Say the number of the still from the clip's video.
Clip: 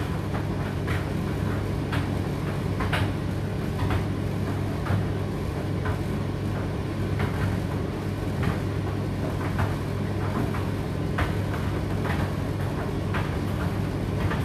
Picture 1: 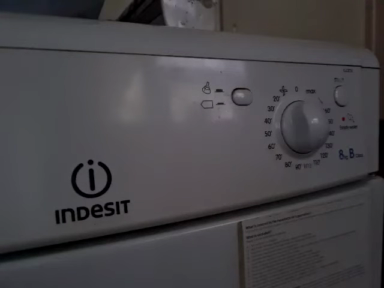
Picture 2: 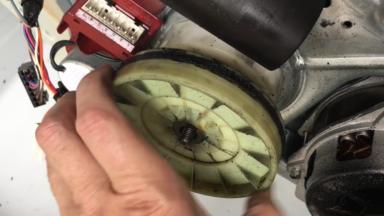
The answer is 1